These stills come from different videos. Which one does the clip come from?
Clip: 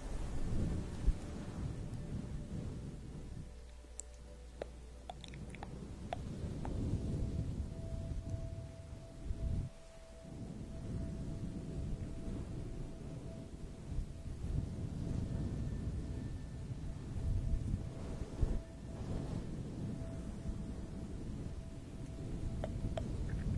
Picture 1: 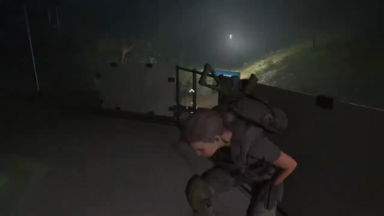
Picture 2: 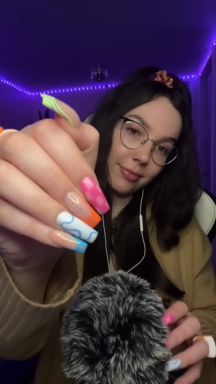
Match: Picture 2